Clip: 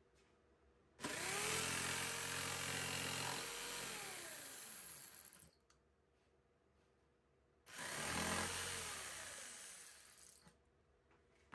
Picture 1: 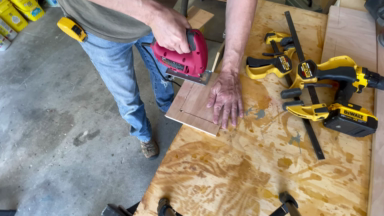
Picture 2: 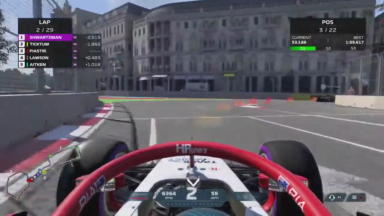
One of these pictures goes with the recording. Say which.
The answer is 1